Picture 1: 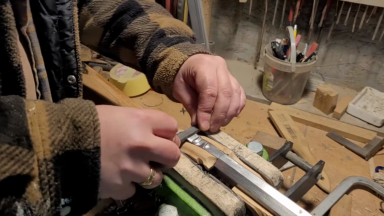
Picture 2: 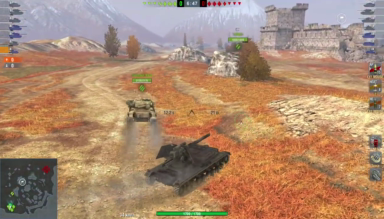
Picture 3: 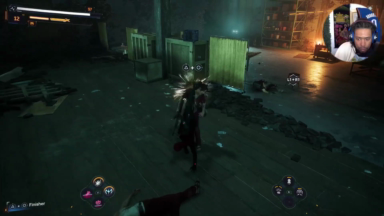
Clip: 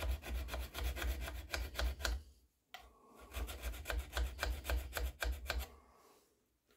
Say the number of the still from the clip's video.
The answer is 1